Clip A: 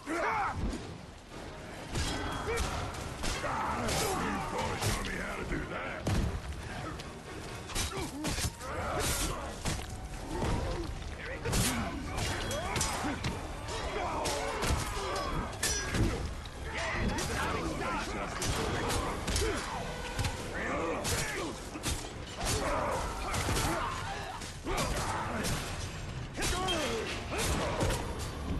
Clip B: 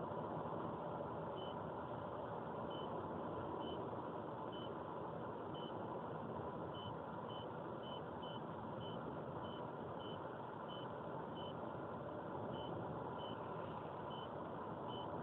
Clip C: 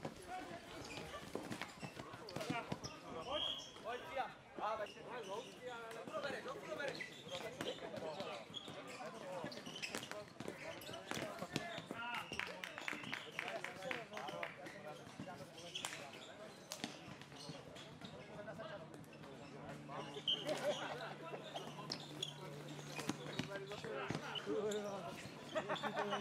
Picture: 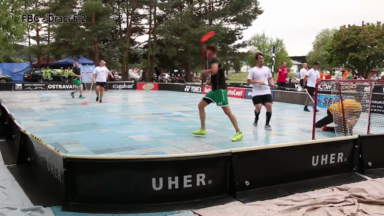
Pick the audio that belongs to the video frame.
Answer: C